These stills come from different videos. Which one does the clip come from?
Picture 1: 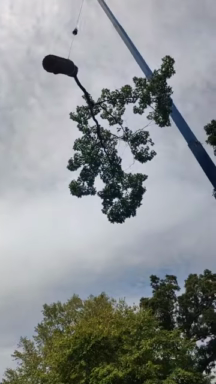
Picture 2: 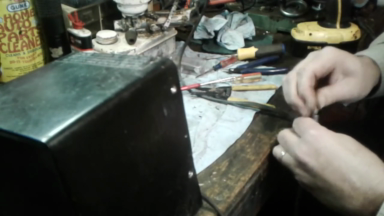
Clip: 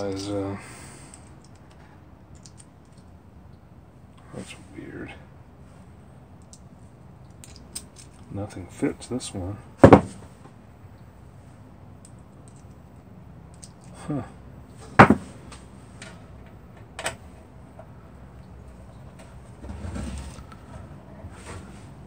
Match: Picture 2